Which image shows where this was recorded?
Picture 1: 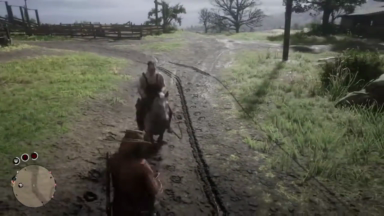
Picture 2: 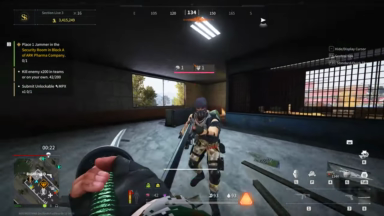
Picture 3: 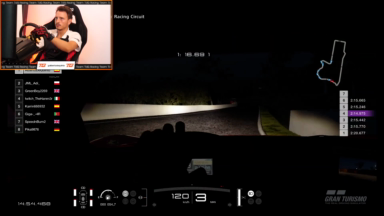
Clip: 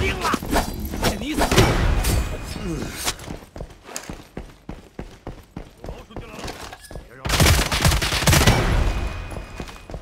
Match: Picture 2